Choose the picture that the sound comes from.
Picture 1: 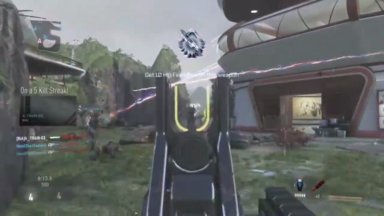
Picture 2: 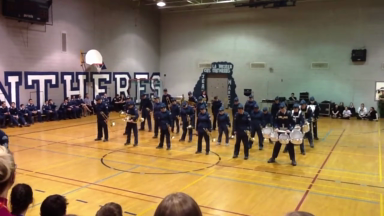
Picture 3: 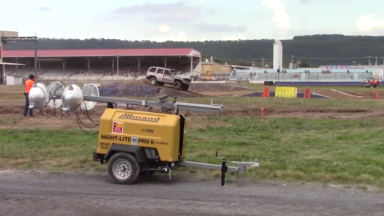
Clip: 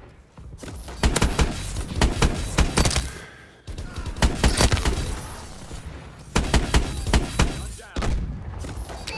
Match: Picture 1